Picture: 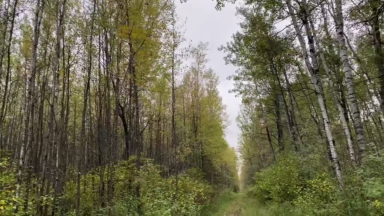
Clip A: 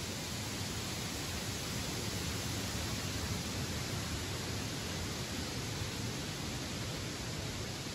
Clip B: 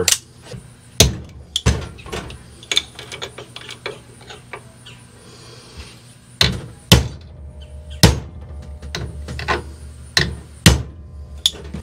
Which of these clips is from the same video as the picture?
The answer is A